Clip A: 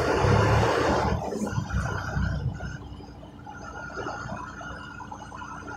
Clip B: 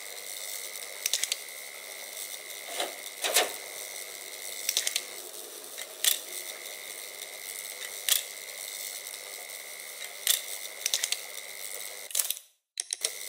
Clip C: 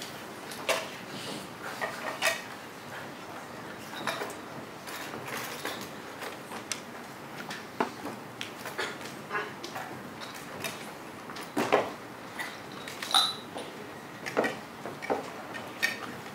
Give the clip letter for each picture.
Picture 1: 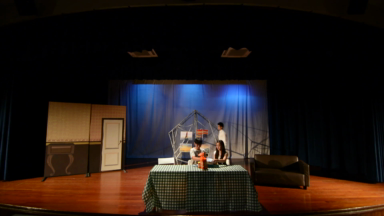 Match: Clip C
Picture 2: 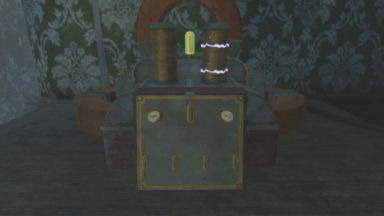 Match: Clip B